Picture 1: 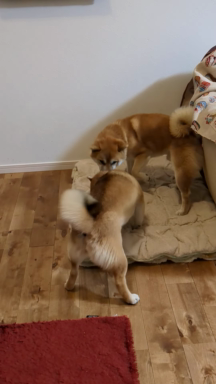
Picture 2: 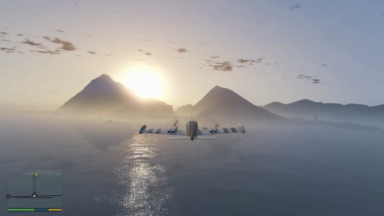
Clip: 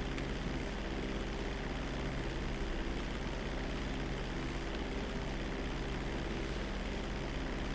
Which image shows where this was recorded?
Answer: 2